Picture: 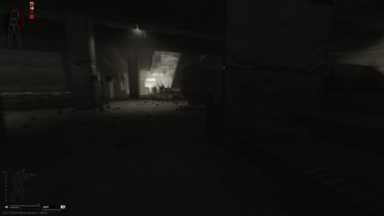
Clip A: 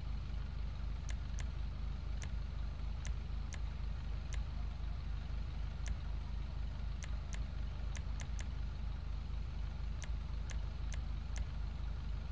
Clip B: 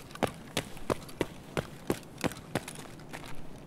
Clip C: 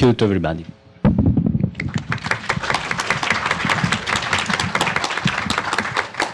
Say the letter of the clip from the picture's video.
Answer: B